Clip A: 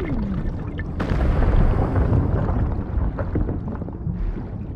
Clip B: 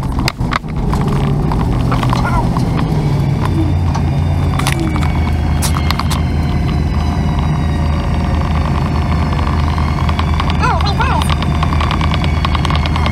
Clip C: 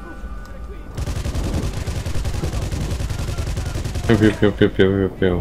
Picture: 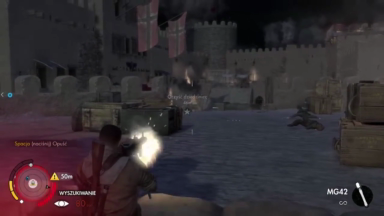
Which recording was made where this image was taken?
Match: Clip C